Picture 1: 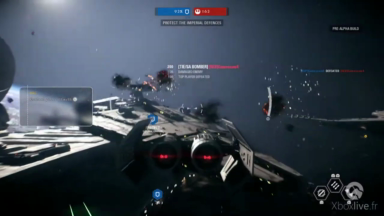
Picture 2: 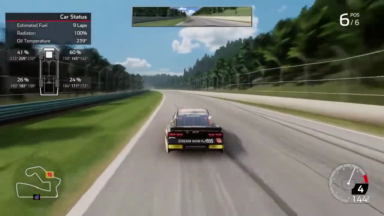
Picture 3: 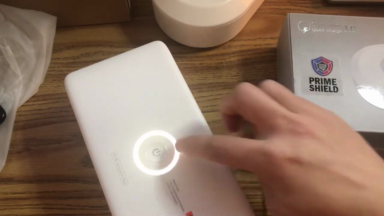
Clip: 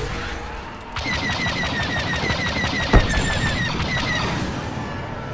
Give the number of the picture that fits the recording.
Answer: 1